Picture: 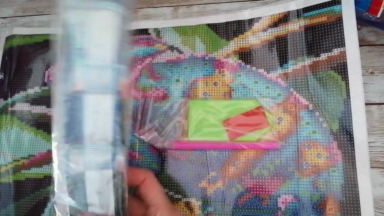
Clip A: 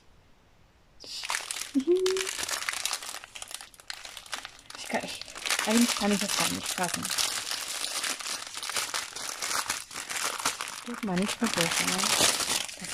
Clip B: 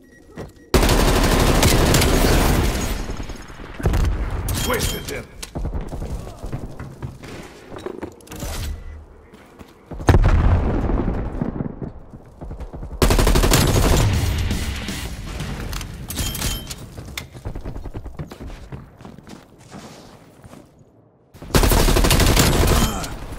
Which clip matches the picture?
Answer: A